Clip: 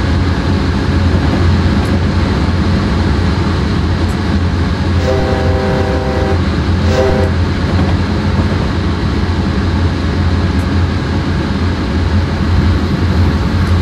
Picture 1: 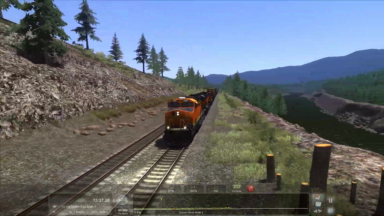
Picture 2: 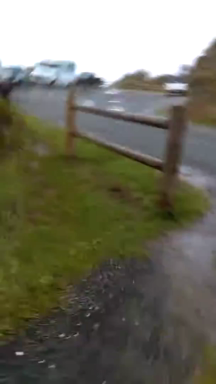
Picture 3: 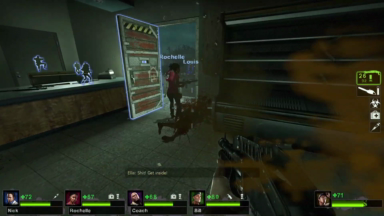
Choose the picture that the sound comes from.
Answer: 1